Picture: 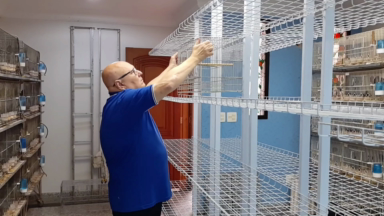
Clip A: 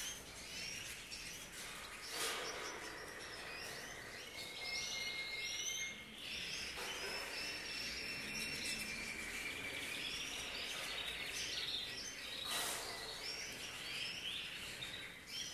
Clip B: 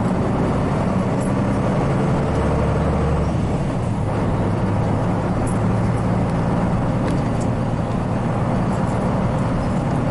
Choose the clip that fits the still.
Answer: A